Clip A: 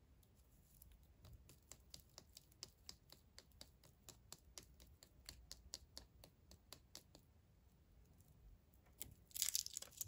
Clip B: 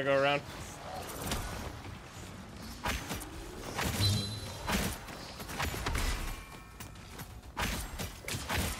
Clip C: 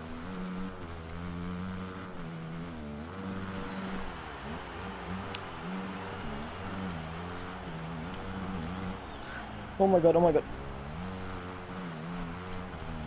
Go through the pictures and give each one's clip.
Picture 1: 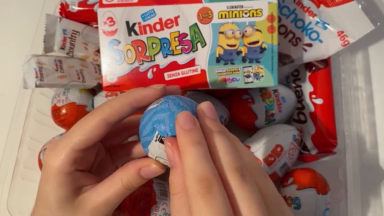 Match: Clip A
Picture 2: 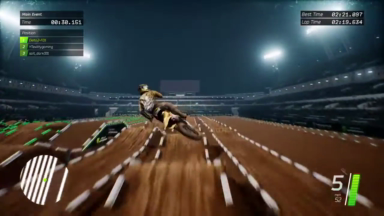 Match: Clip C